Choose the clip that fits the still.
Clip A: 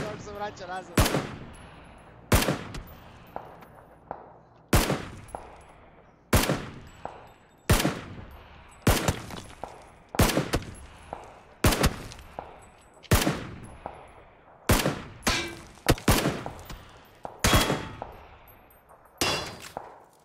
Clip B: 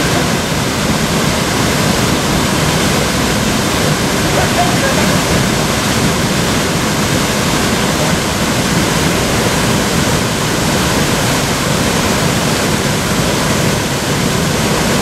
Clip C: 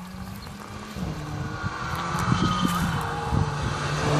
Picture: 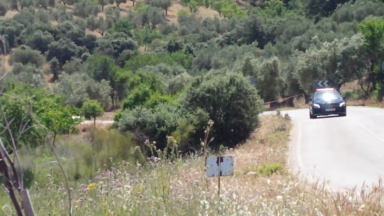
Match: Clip C